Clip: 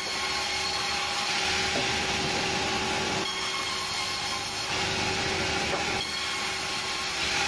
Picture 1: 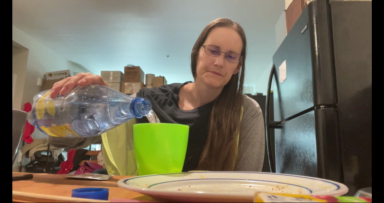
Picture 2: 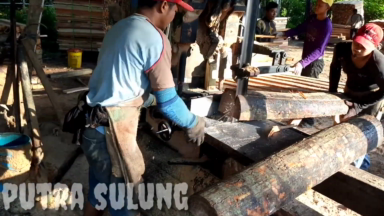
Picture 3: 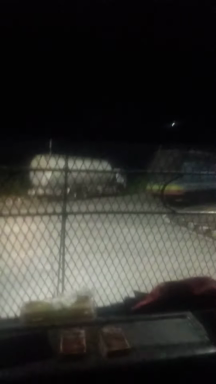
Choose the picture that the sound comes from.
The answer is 2